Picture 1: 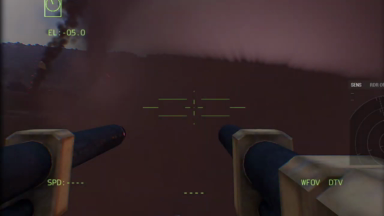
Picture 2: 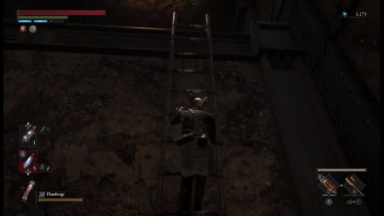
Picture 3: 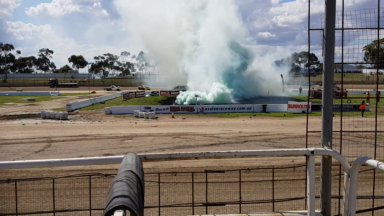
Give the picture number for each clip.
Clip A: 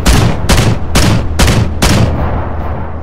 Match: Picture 1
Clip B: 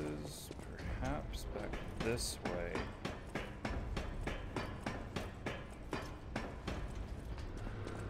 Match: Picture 2